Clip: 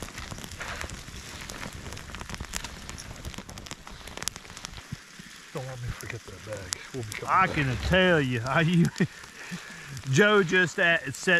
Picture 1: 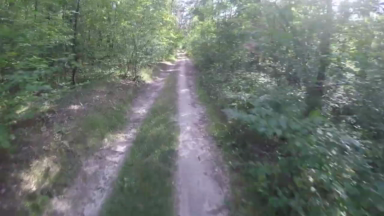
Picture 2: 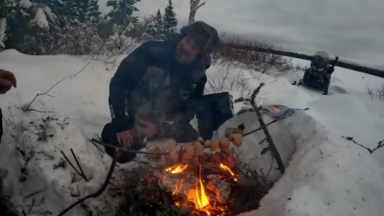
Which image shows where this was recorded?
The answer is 2